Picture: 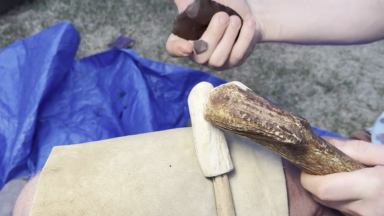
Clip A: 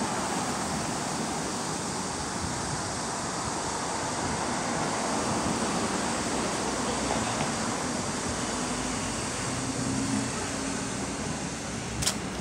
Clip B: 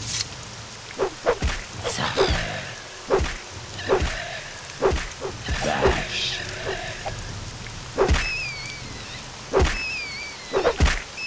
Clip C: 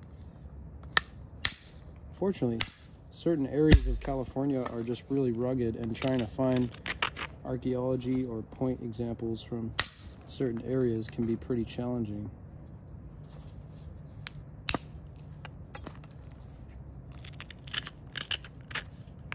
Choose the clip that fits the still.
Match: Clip C